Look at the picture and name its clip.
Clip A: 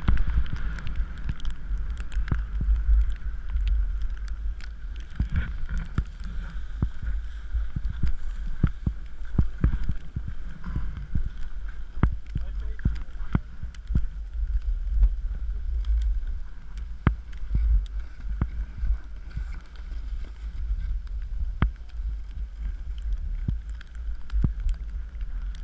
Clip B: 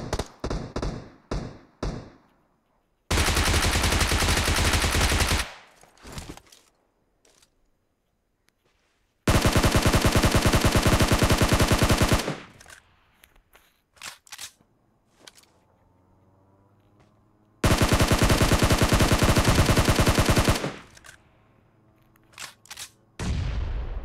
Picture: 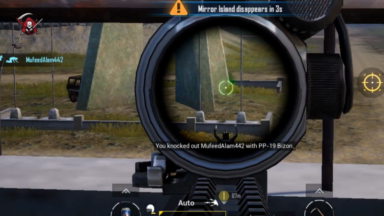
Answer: B